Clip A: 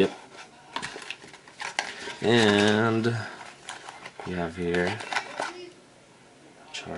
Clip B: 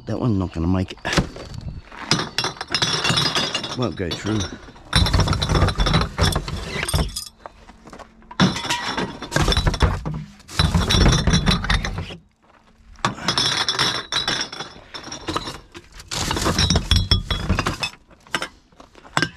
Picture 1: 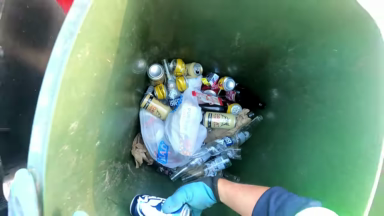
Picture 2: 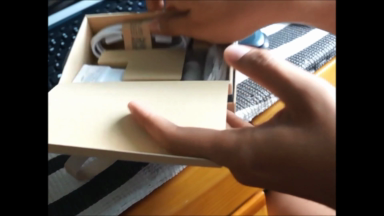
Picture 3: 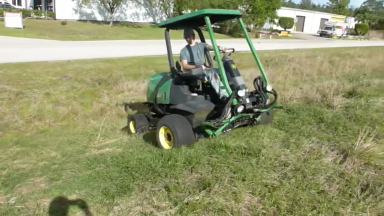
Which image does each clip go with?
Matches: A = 2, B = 1